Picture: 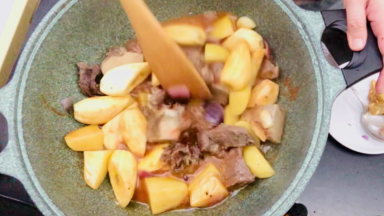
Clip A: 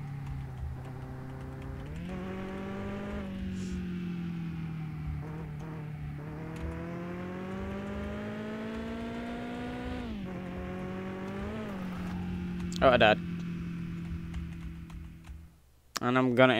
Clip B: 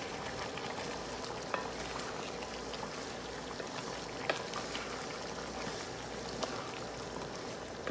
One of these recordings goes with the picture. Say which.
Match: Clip B